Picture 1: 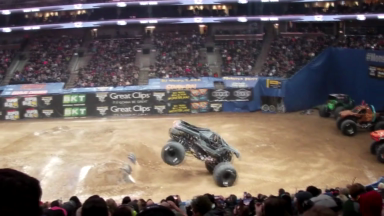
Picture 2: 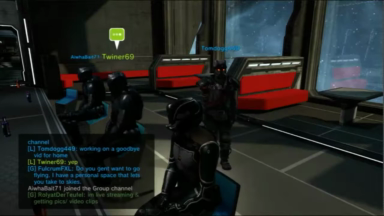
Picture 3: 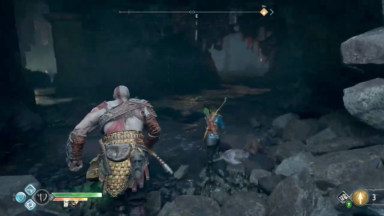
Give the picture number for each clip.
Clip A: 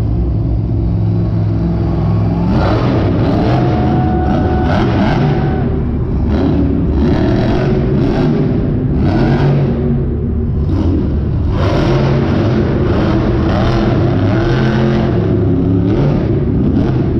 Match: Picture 1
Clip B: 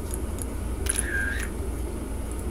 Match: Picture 2